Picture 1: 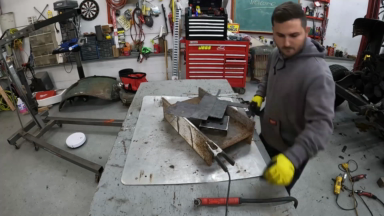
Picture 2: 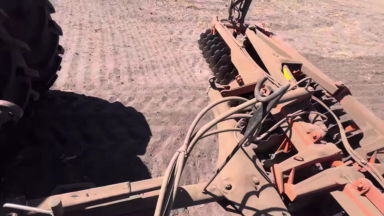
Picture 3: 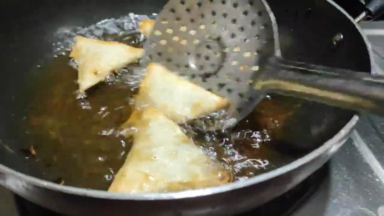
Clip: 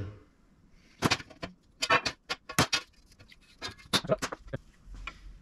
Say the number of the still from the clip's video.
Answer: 1